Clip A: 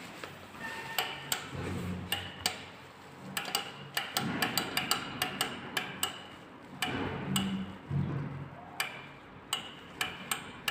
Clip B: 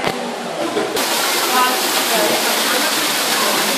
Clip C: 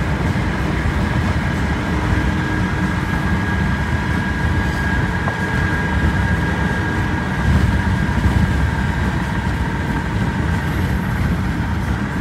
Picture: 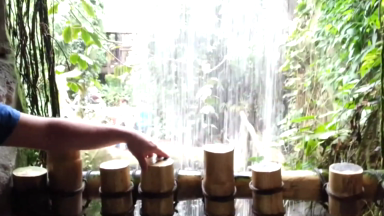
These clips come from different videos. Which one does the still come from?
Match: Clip B